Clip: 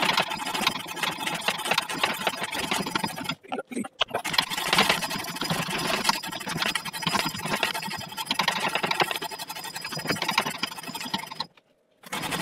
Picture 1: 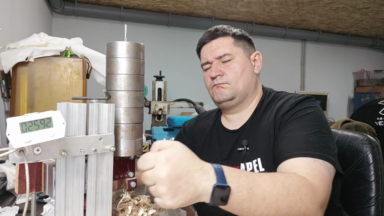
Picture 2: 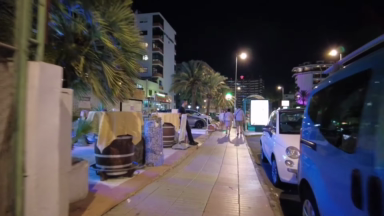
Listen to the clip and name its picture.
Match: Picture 1